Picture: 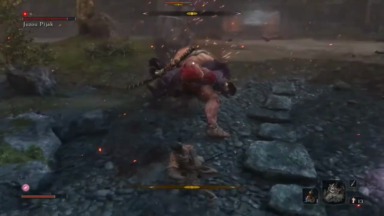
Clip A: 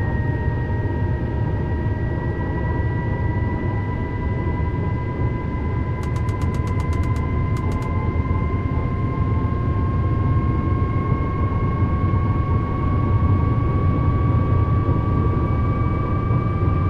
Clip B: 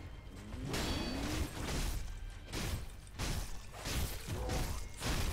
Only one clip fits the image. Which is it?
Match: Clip B